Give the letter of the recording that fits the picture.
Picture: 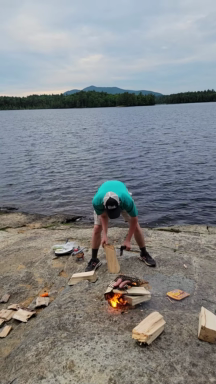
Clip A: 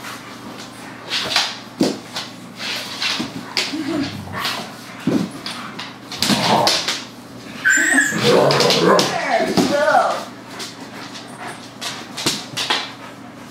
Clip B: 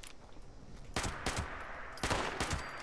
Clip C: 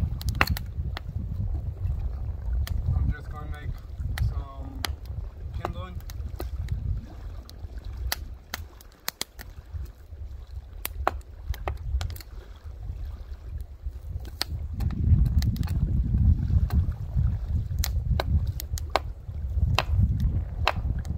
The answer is C